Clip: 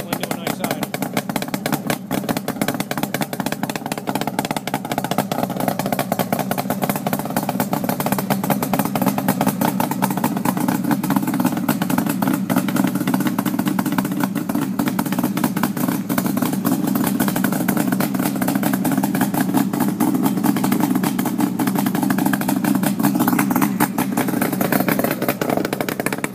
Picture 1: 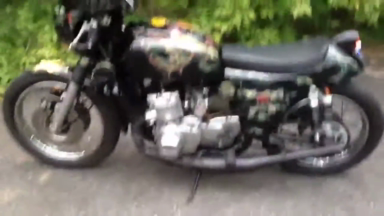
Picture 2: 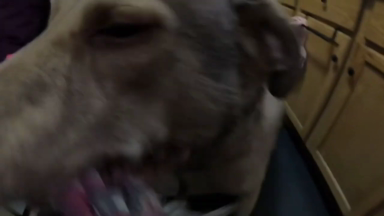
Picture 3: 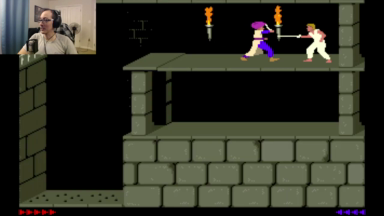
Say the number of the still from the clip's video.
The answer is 1